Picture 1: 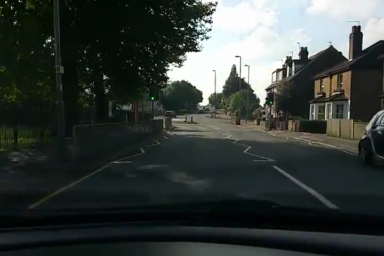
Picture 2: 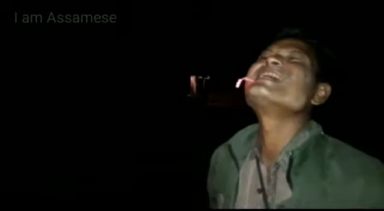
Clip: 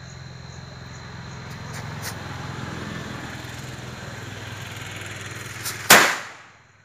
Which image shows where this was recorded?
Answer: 2